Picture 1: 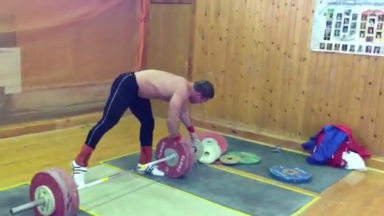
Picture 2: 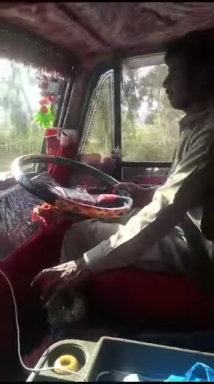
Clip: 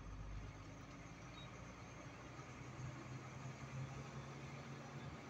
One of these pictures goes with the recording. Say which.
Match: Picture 2